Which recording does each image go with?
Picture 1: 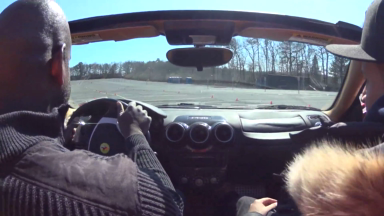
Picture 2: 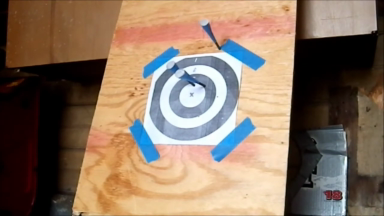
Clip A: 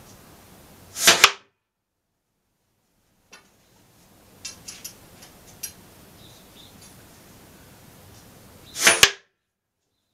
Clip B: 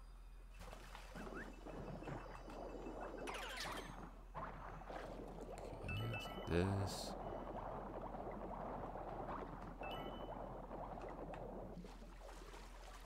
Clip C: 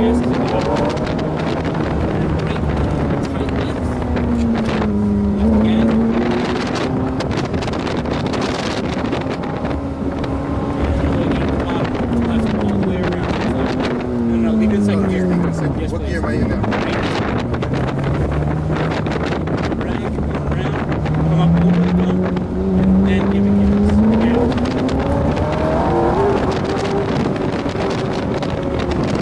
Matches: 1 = C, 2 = A